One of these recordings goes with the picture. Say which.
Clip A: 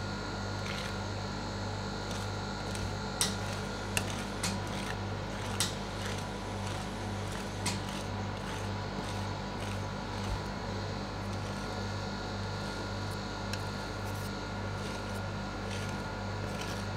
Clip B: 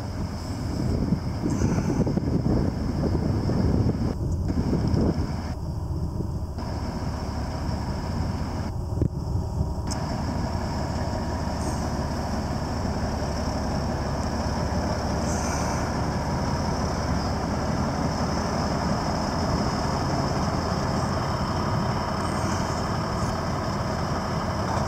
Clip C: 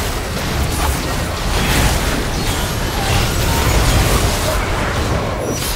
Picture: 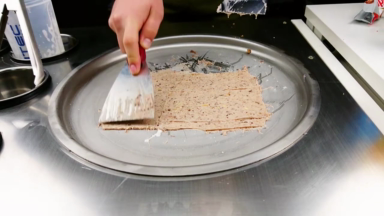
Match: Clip A